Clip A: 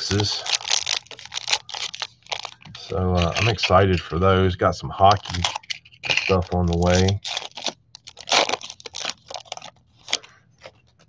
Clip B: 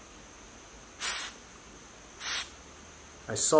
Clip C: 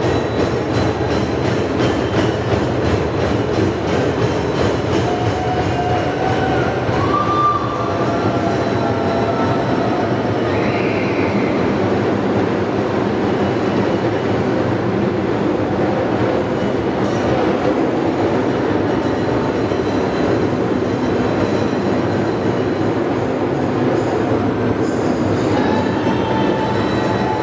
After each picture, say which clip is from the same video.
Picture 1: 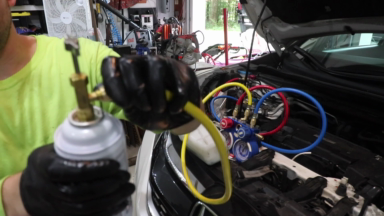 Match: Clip B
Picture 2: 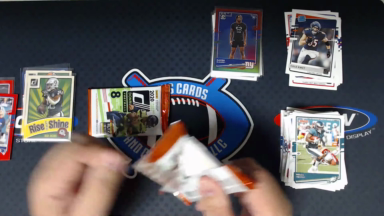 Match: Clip A